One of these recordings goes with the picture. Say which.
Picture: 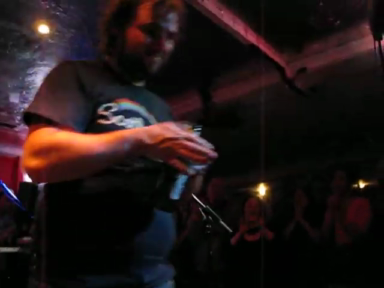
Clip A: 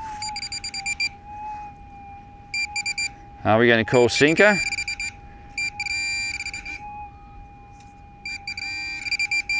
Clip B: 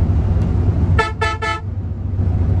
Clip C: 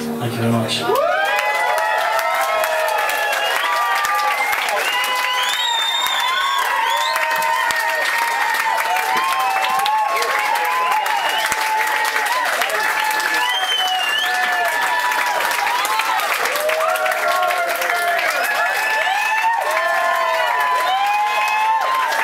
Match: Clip C